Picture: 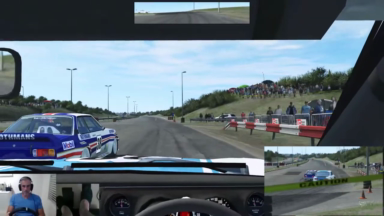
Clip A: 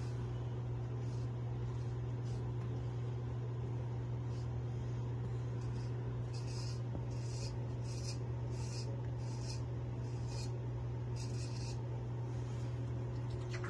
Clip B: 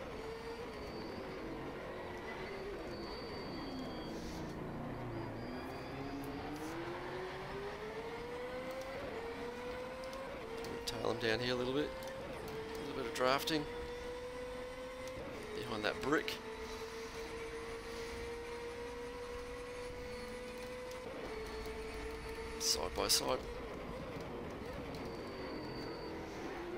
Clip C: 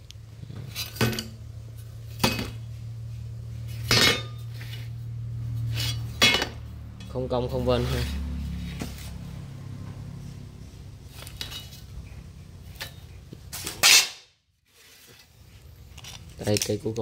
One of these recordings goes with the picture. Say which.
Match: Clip B